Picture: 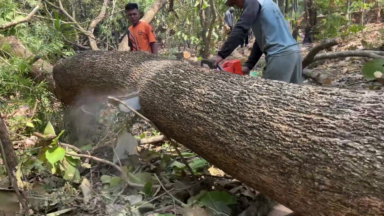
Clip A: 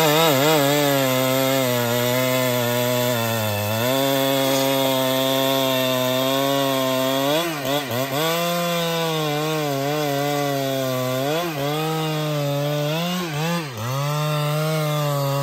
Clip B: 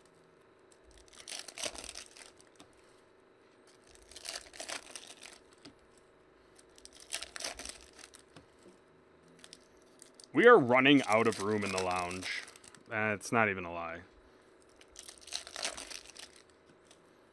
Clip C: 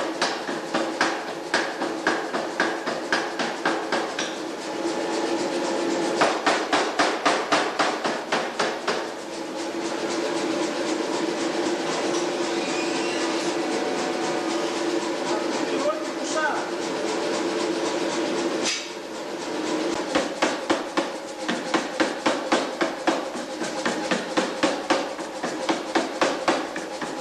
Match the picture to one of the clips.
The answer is A